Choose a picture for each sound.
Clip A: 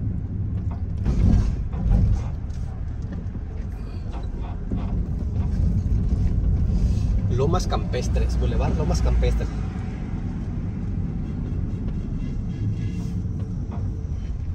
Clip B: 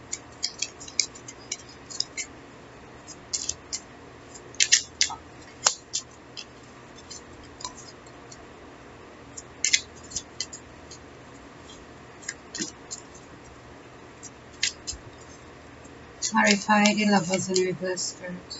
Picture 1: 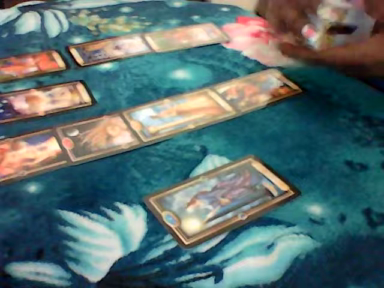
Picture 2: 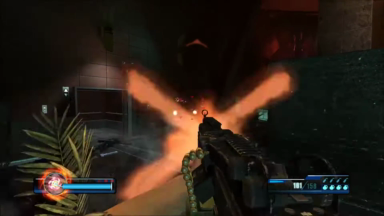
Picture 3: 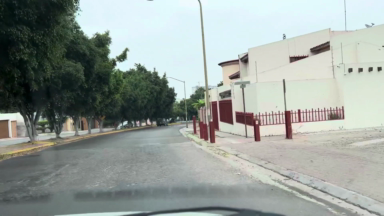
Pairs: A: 3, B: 1